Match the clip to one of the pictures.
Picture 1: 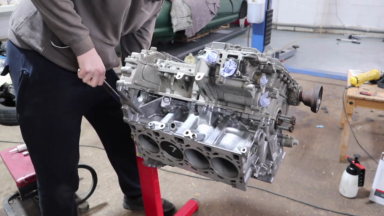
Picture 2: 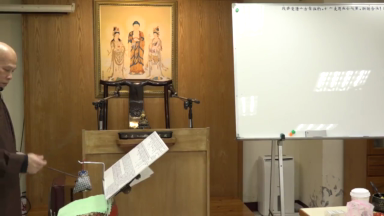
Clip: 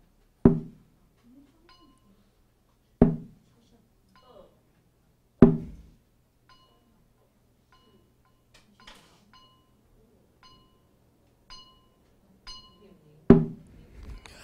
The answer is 2